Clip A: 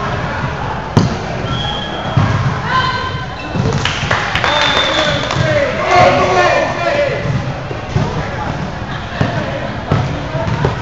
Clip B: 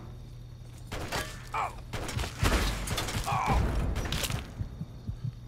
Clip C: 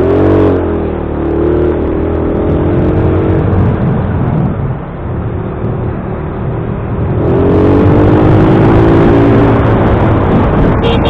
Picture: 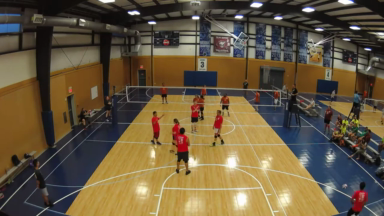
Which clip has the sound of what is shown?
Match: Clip A